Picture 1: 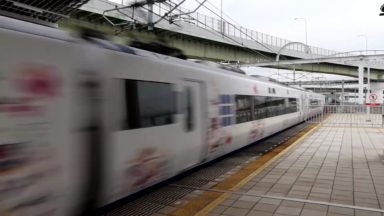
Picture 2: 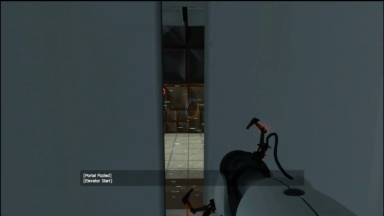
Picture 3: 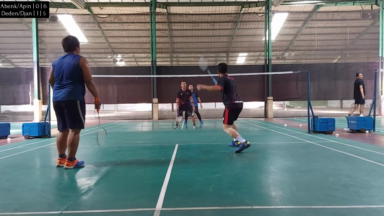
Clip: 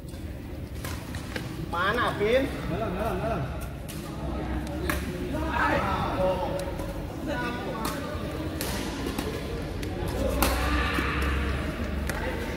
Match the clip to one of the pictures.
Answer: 3